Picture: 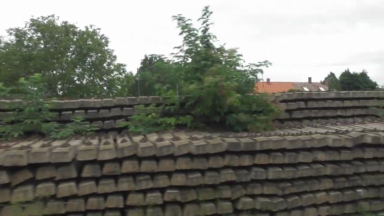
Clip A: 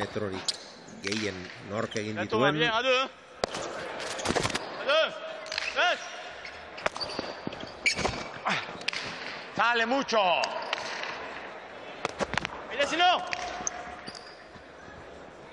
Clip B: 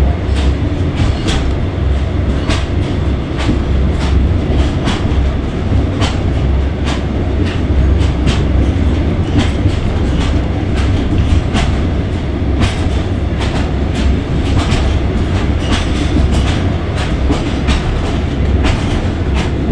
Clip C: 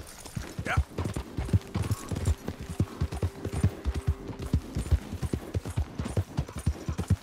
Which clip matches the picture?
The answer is B